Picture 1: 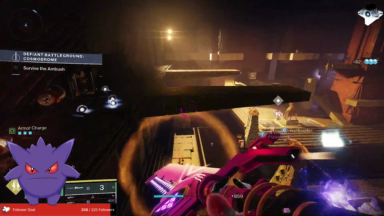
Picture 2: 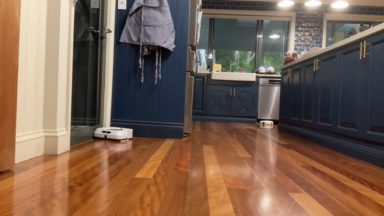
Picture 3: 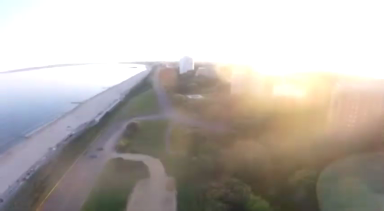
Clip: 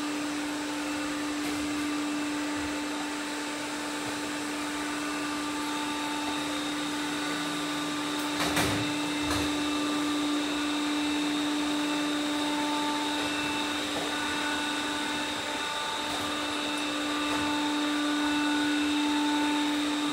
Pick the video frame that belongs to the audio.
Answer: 2